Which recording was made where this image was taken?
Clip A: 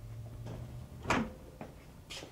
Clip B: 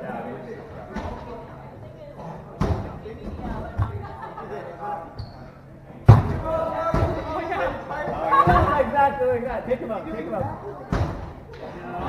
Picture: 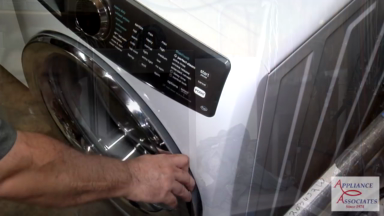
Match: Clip A